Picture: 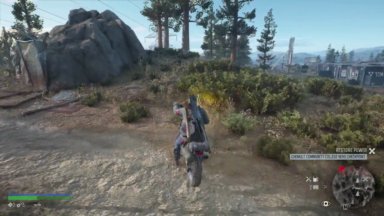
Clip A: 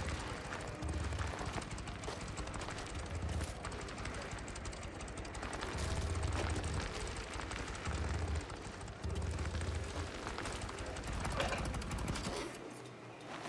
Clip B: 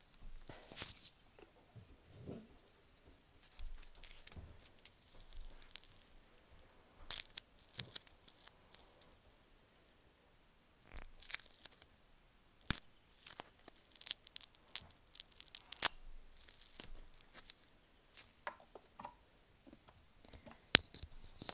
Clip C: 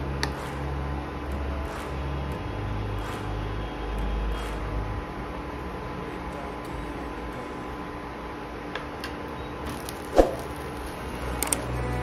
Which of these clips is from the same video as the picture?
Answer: A